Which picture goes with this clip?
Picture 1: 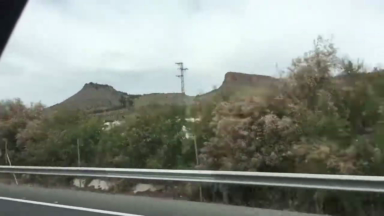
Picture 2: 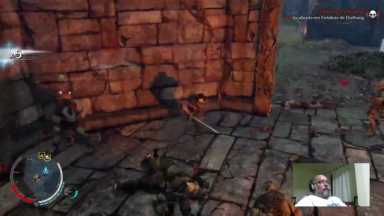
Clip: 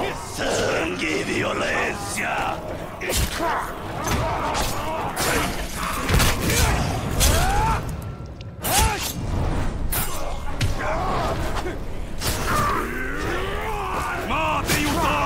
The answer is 2